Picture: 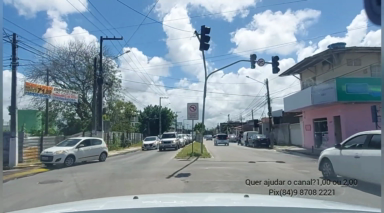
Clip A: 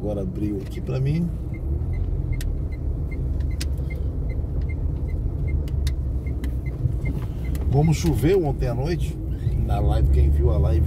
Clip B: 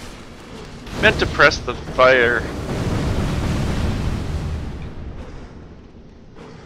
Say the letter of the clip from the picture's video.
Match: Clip A